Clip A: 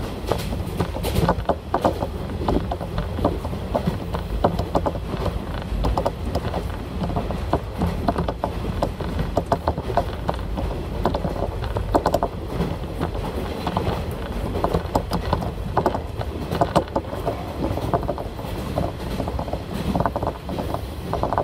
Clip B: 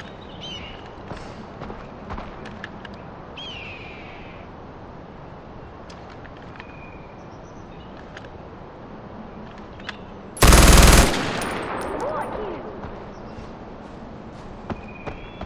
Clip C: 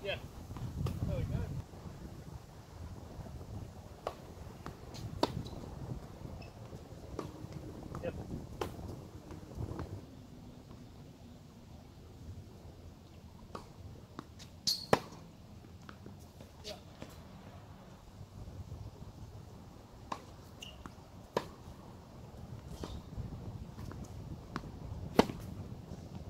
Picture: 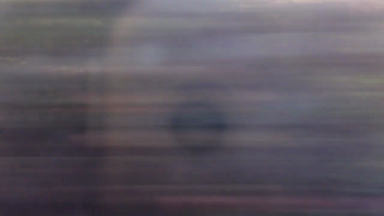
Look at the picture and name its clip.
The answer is A